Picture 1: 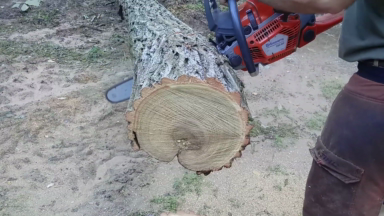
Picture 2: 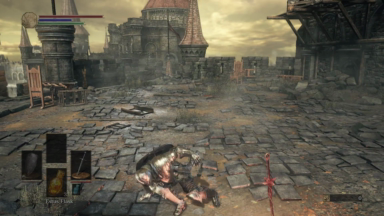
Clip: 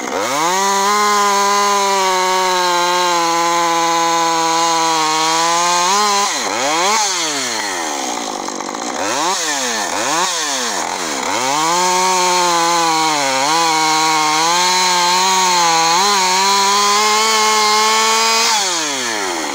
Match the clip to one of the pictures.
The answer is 1